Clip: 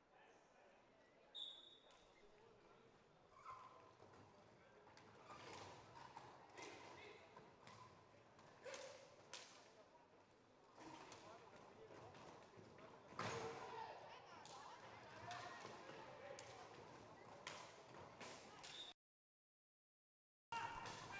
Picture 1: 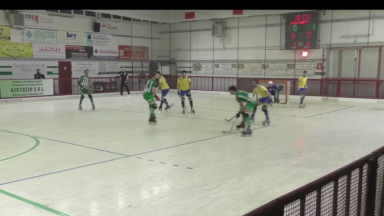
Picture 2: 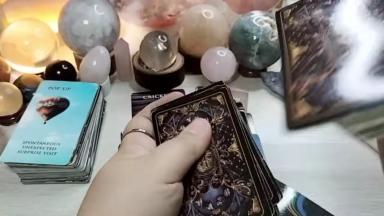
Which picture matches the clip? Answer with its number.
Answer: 1